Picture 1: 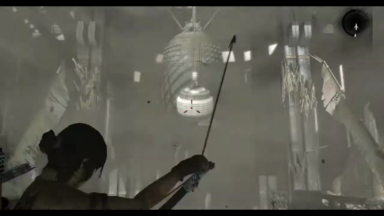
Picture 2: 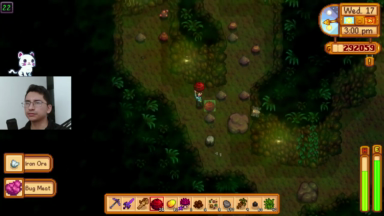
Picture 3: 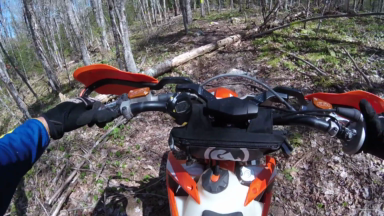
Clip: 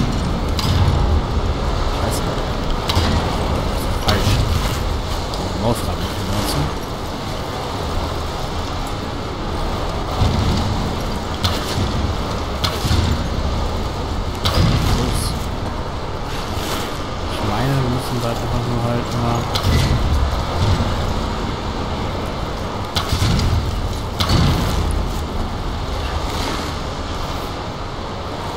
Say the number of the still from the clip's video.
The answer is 1